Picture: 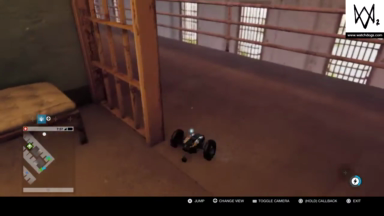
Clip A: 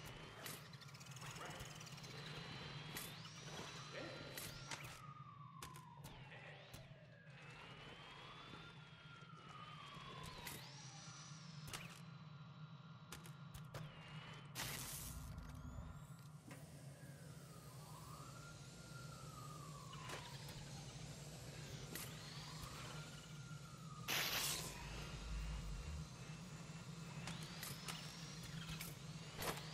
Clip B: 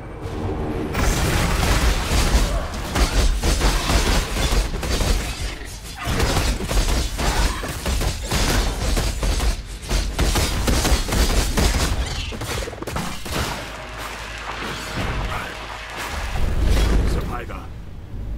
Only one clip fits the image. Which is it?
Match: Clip A